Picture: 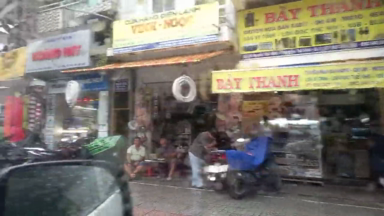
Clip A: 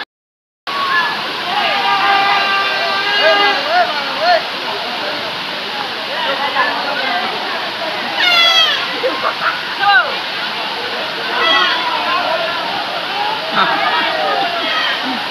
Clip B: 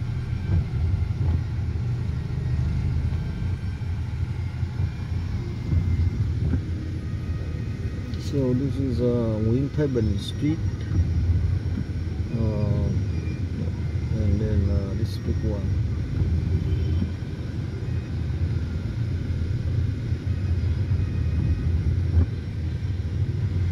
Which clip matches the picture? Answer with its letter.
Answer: B